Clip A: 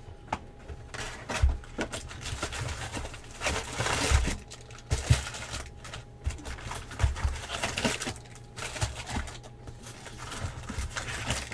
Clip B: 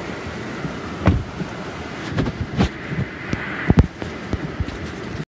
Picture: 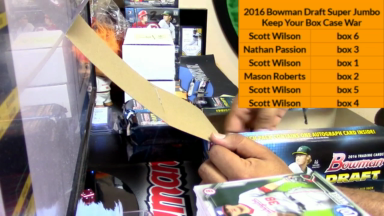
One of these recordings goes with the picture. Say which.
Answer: A